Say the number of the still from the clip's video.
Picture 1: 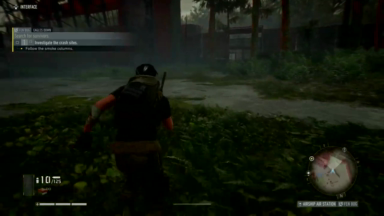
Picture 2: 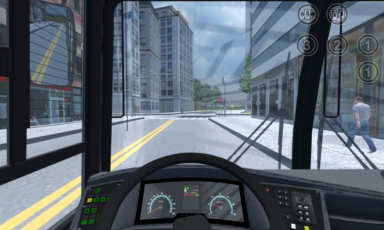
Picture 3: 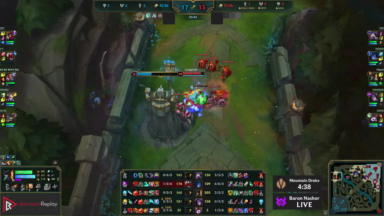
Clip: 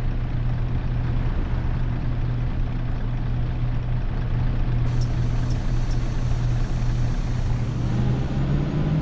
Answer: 2